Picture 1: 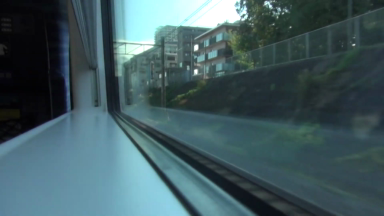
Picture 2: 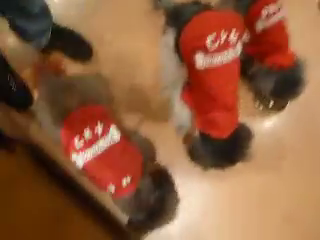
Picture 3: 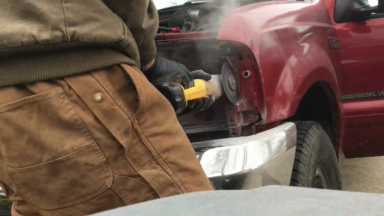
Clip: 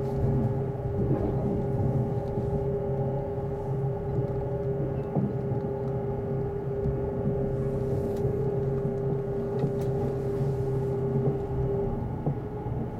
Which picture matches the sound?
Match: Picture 1